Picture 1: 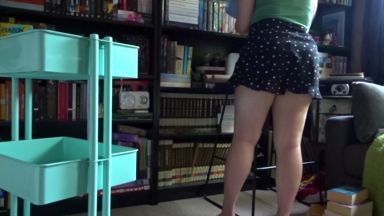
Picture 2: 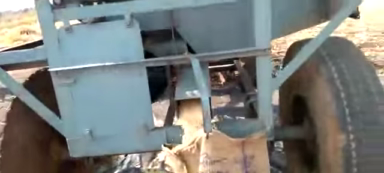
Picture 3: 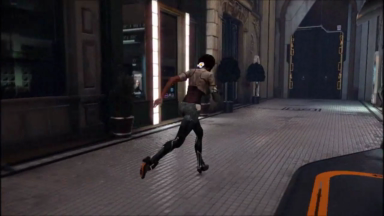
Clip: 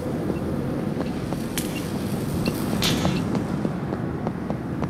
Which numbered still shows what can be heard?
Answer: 3